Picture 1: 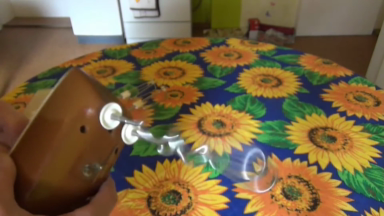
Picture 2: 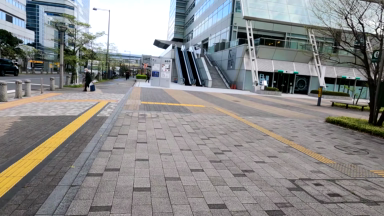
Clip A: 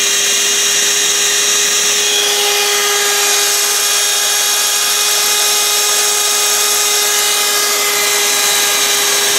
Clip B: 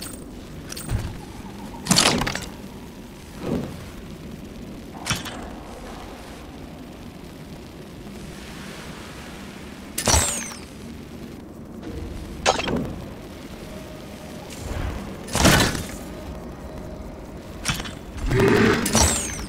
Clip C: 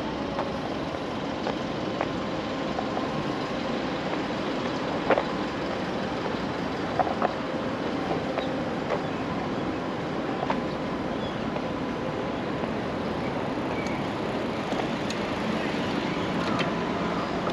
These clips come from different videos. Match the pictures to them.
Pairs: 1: A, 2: C